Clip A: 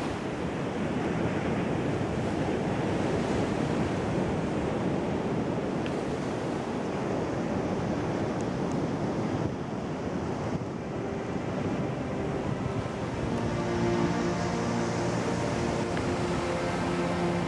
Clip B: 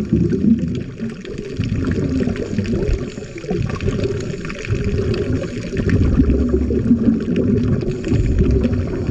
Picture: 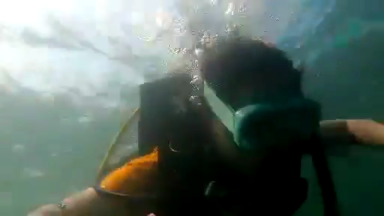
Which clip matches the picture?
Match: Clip B